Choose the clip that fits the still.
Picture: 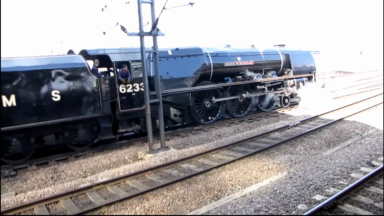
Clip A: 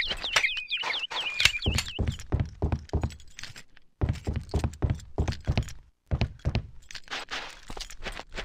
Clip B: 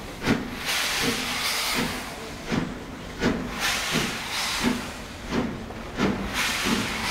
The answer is B